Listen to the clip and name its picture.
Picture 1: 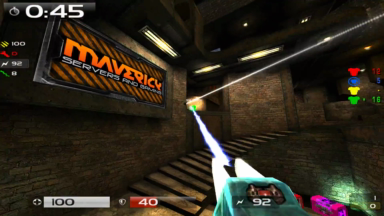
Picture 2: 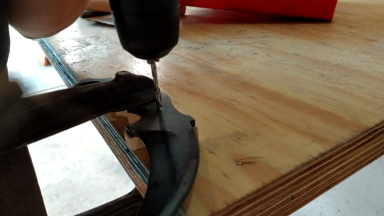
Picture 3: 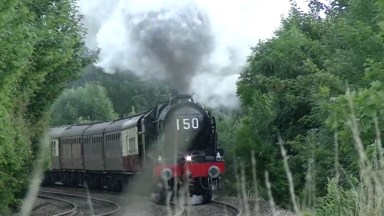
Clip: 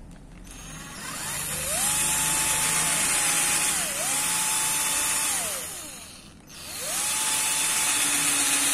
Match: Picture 2